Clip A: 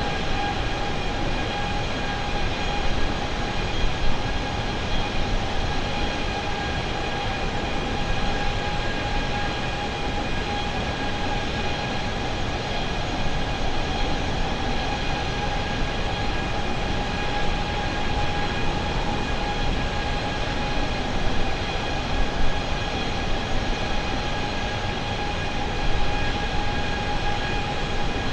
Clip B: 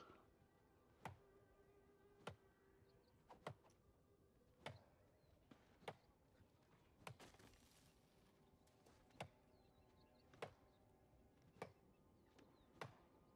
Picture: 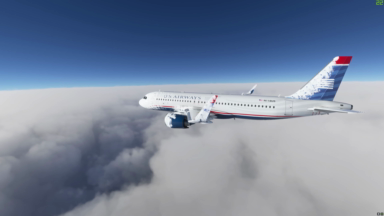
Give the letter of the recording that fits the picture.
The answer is A